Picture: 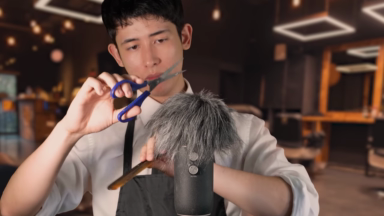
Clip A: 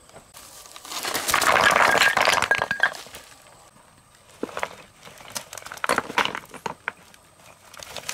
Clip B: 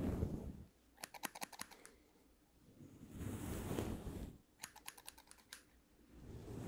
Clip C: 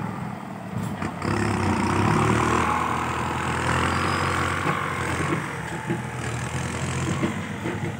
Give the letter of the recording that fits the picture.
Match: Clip B